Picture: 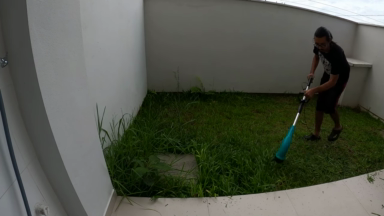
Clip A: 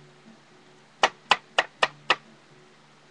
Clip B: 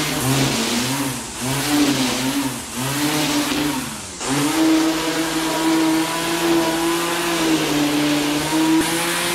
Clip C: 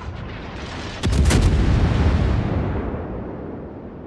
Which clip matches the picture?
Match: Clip B